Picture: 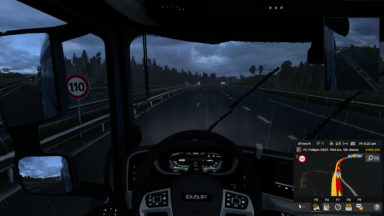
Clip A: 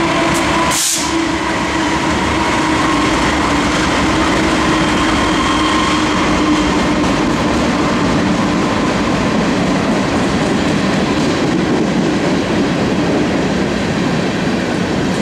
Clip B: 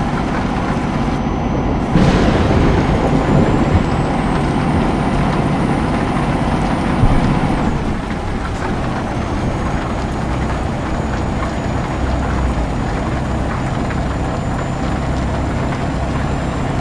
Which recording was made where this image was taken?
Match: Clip B